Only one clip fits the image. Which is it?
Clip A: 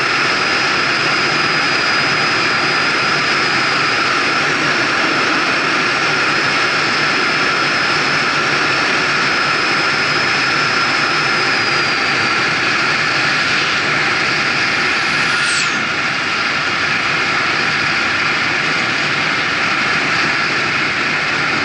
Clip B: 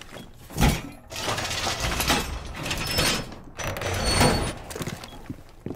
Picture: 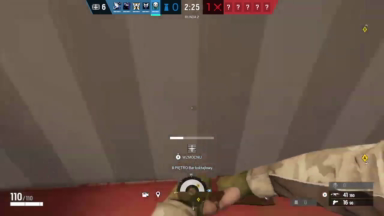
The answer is B